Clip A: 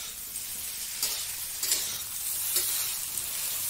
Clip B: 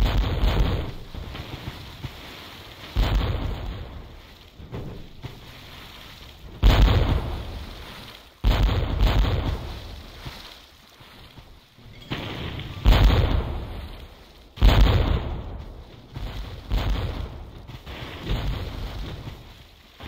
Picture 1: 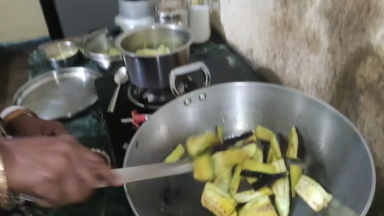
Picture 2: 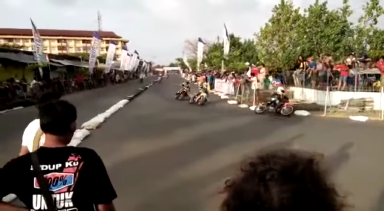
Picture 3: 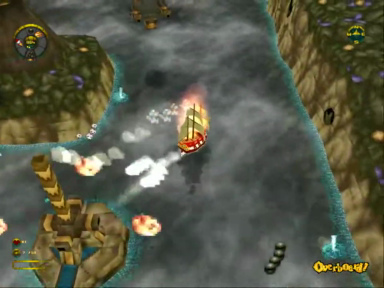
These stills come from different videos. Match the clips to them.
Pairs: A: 1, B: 3